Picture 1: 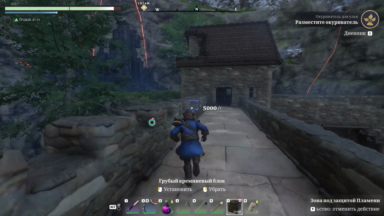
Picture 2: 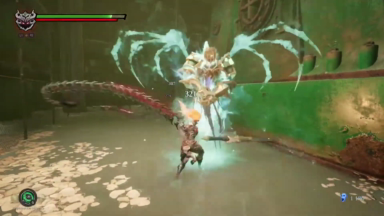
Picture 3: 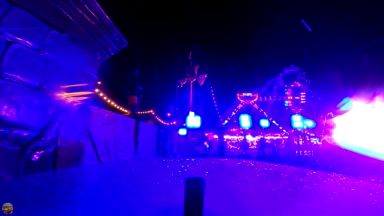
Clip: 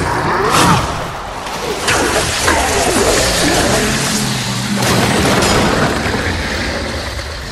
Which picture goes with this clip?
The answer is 2